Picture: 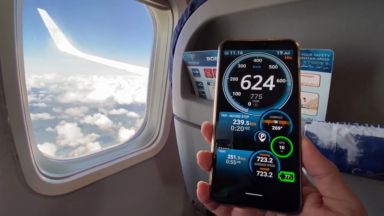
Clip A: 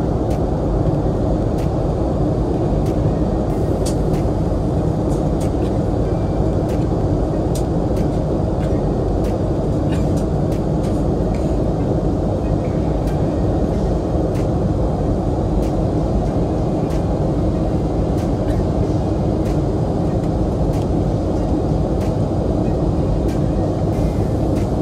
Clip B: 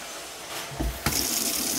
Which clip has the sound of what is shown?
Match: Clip A